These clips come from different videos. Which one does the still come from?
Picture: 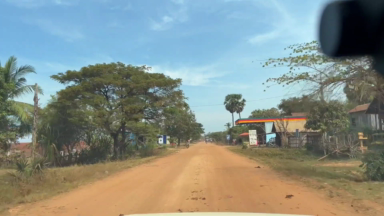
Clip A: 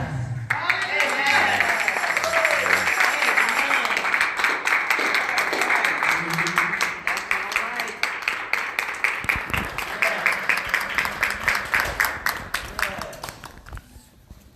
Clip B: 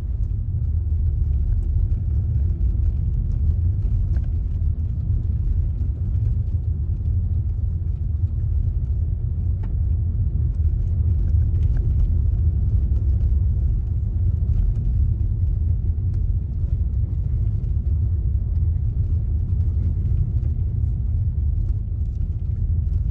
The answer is B